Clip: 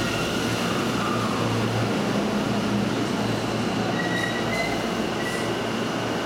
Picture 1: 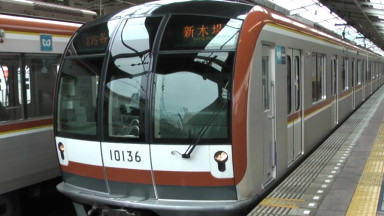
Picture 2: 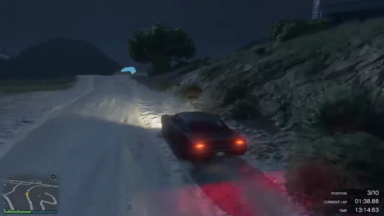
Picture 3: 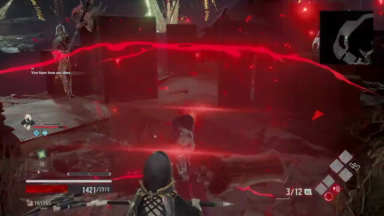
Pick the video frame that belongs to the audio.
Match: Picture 1